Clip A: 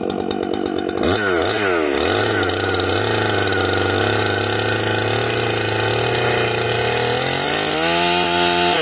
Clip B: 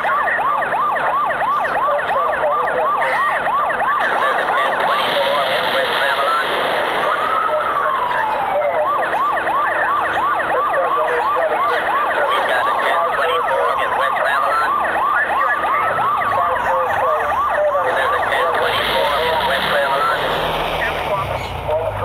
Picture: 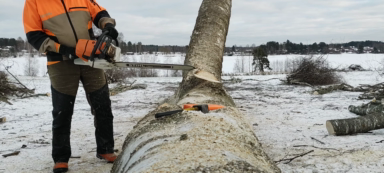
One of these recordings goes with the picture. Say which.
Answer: A